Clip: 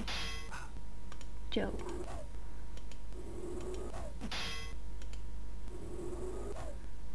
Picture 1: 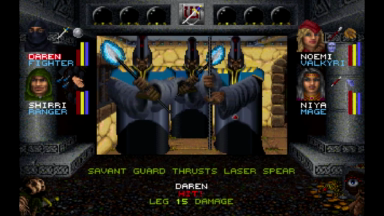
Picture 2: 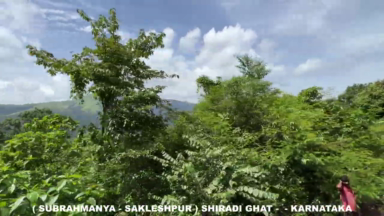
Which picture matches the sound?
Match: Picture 1